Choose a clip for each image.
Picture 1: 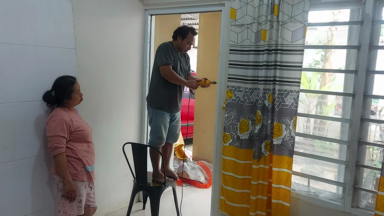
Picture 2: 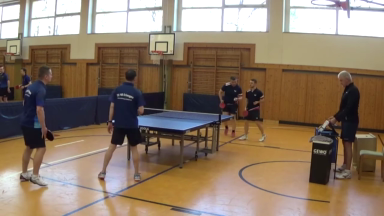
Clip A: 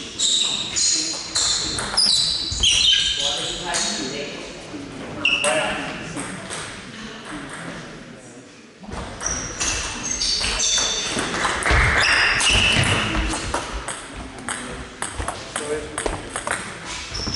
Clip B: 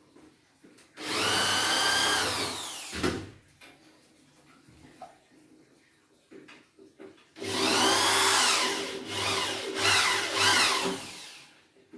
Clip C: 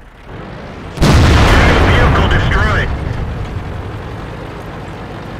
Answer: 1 B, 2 A